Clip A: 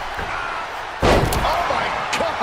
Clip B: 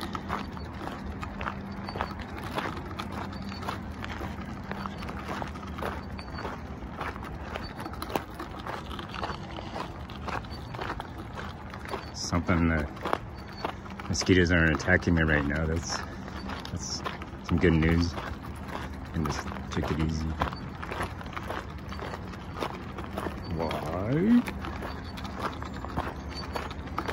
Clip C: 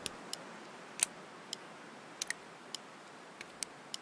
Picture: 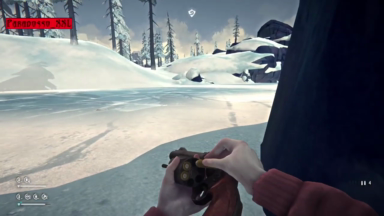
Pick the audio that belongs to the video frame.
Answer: C